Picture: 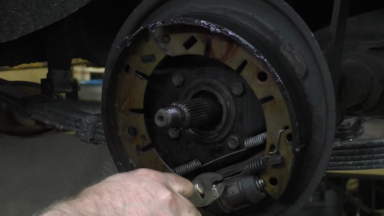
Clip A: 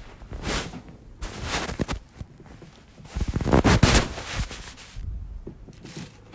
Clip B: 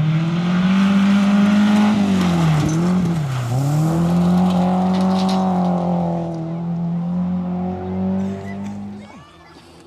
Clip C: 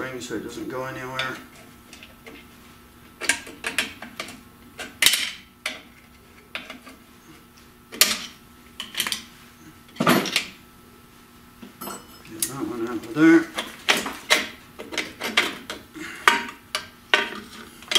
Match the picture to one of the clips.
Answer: C